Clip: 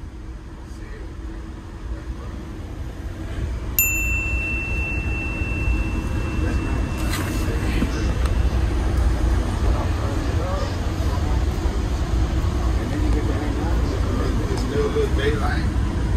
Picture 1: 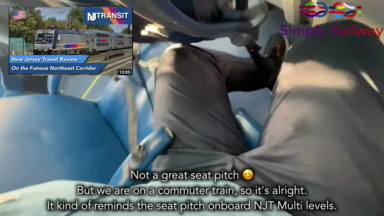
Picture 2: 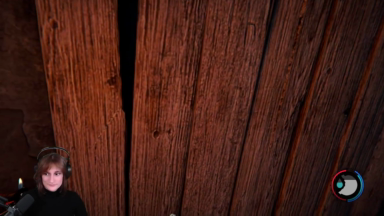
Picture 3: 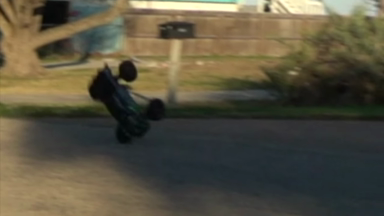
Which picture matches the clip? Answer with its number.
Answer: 1